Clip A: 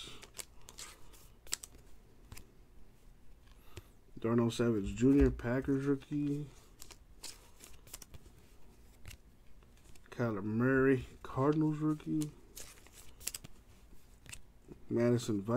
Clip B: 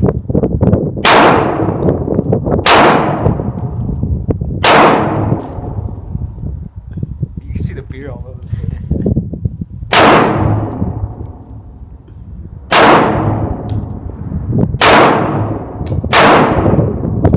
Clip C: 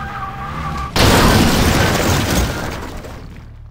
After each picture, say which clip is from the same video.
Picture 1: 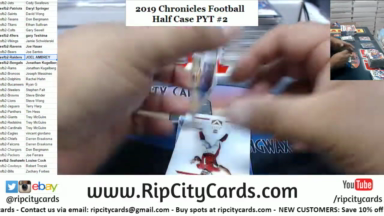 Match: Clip A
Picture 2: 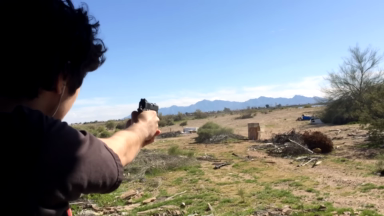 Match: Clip B